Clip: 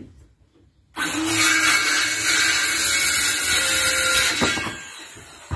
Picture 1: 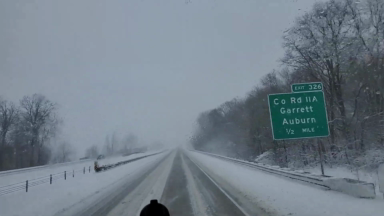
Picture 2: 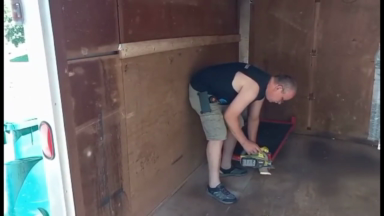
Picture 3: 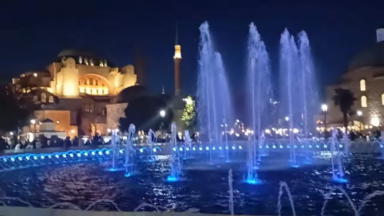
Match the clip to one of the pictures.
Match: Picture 2